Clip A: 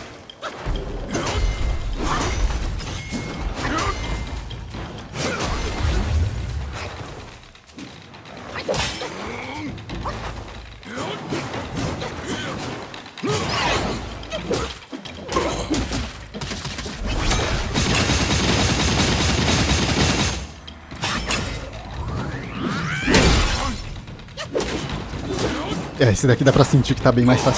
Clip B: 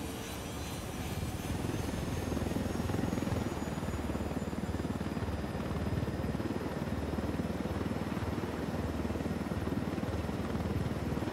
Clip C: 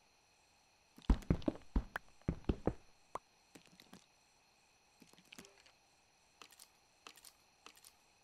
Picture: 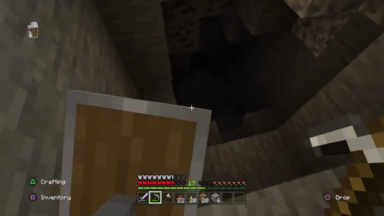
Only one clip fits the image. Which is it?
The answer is C